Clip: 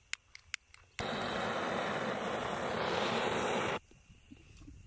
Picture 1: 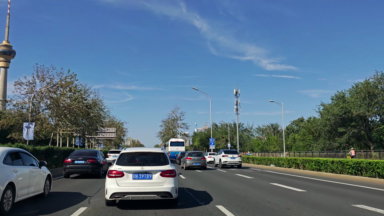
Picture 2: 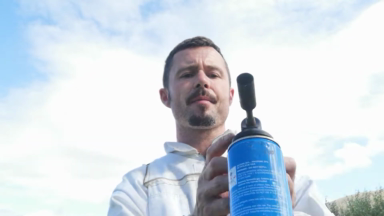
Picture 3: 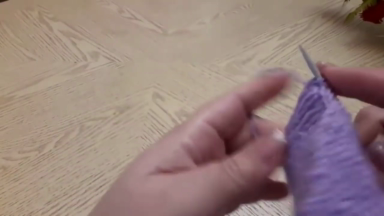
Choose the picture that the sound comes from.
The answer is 2